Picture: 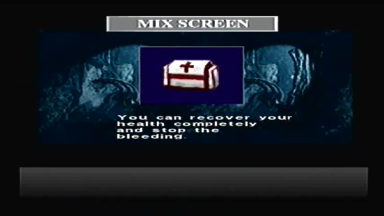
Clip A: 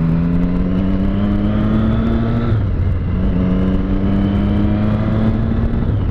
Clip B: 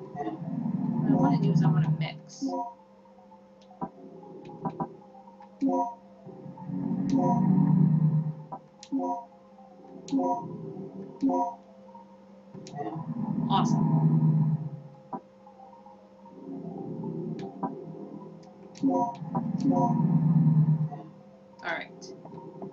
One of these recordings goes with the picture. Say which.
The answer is B